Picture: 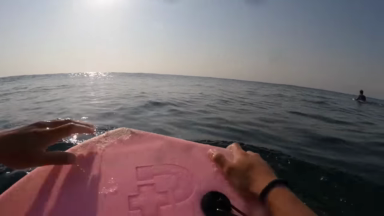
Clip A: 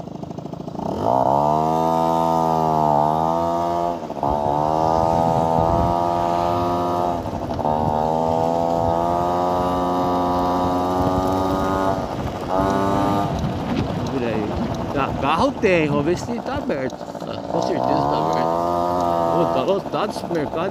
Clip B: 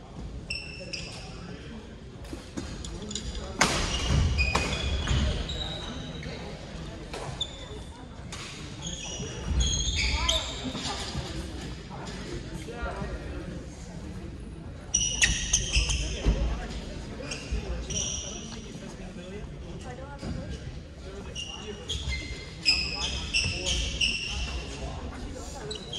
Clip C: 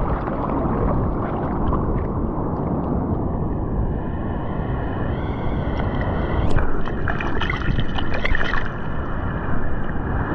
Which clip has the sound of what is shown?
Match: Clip C